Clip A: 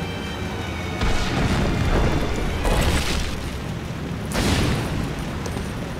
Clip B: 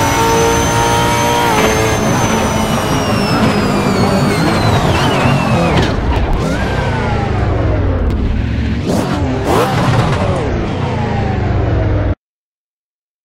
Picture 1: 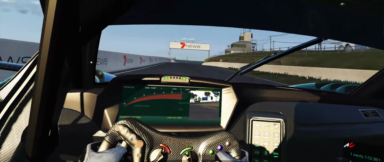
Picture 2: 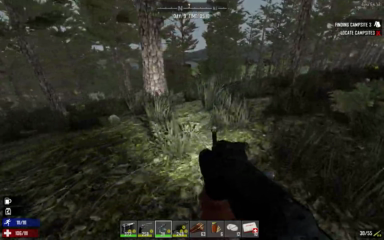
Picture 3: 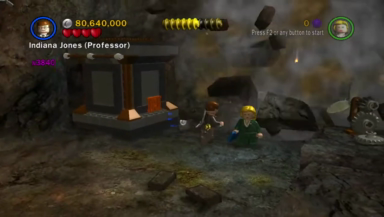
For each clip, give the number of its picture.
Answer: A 3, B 1